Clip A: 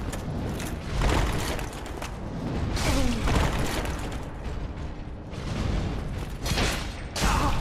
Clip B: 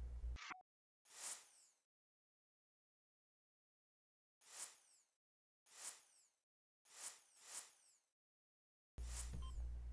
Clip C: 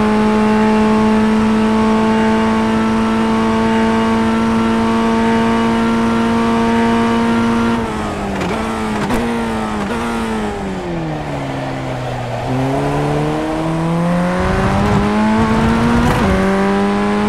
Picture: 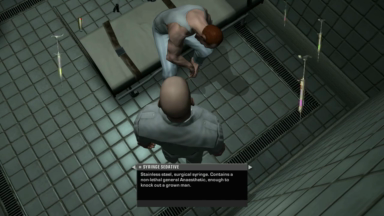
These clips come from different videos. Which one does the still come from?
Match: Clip B